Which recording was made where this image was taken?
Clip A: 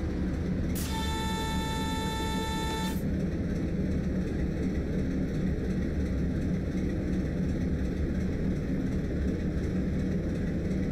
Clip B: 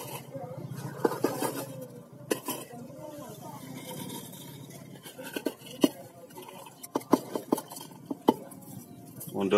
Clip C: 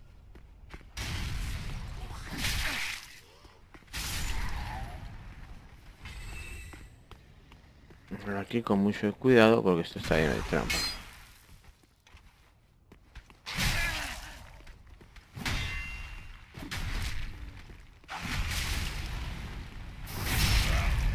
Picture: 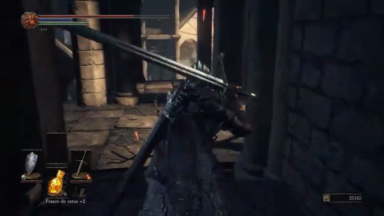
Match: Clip C